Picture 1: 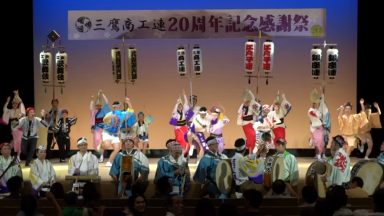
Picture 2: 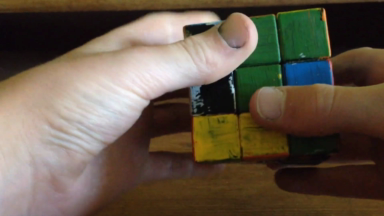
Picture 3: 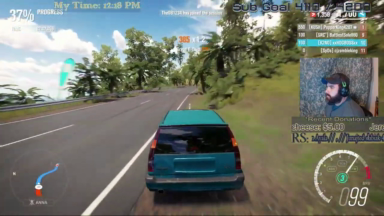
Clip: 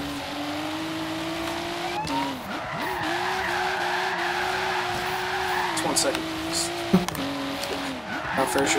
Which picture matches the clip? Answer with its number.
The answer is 3